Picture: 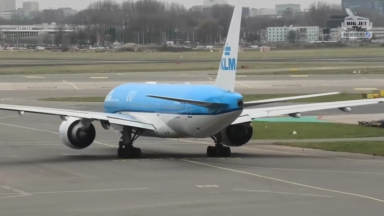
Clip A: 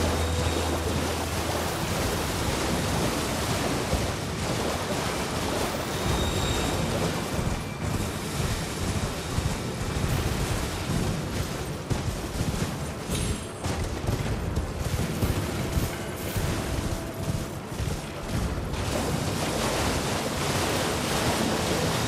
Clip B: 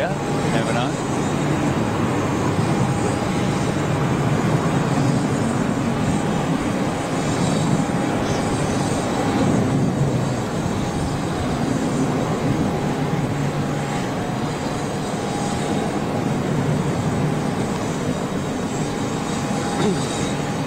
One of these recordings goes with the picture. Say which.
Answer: B